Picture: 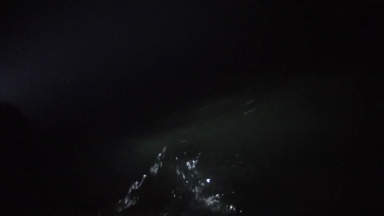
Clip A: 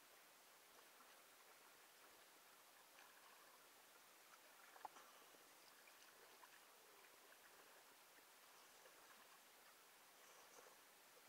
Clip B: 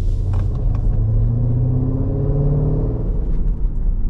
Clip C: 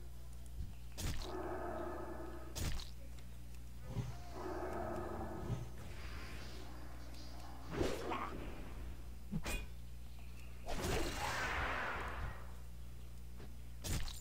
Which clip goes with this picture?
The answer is A